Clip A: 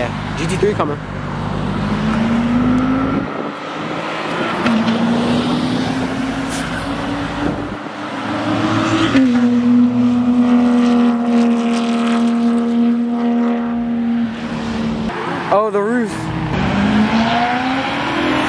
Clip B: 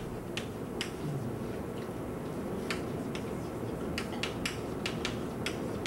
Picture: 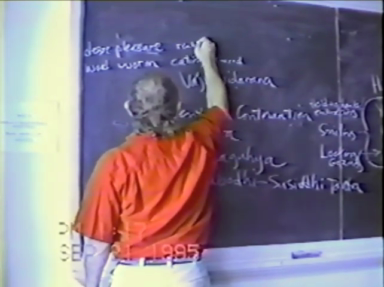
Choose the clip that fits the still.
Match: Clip B